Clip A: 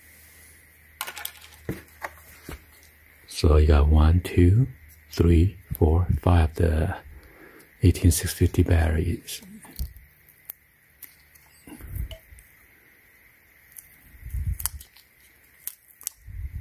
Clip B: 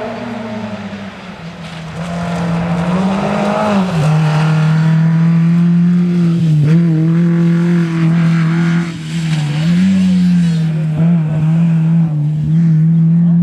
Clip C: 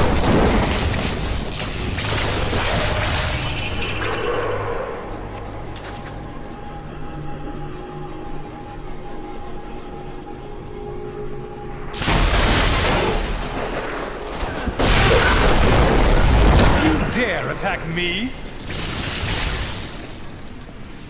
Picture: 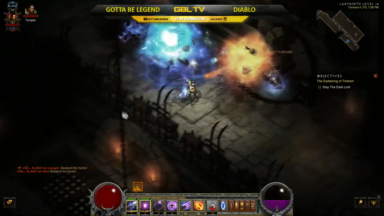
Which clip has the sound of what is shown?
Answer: C